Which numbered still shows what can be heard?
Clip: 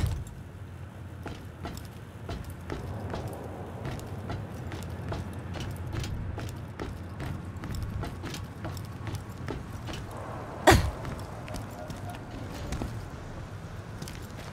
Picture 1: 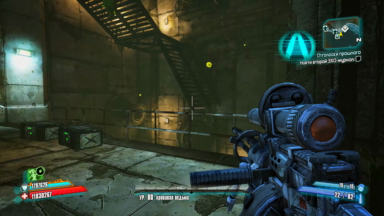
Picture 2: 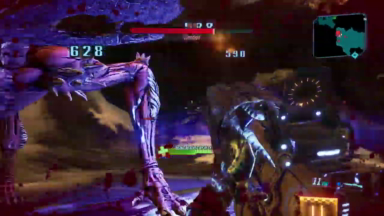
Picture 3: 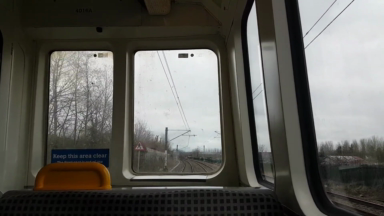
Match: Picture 1